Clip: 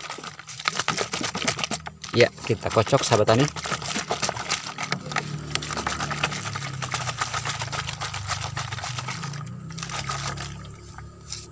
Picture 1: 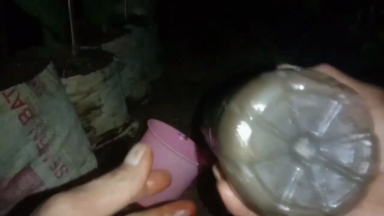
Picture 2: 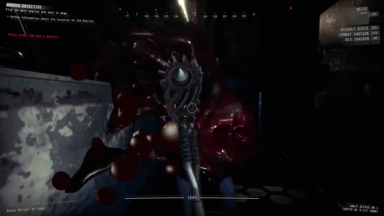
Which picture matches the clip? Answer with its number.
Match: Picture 1